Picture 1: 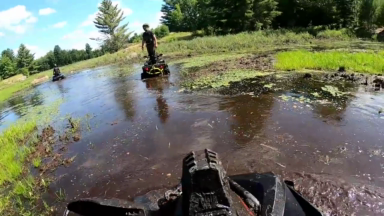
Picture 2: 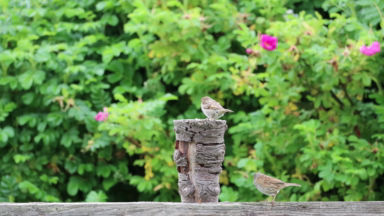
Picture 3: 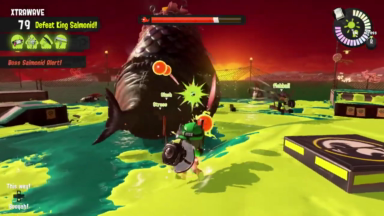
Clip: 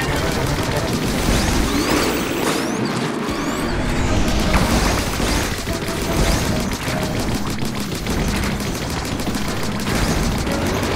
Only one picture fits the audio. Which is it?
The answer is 3